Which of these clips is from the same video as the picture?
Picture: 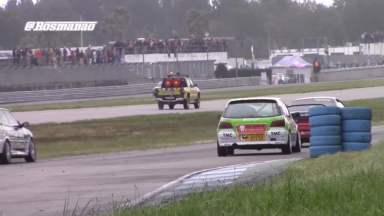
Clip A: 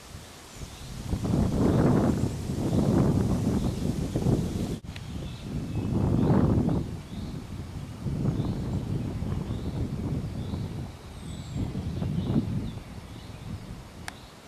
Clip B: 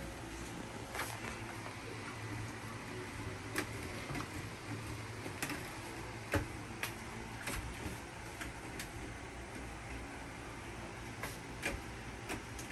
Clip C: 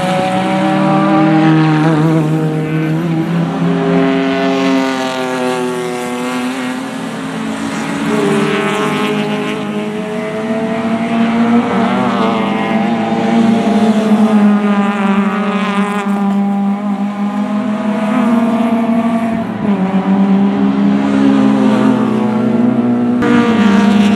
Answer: C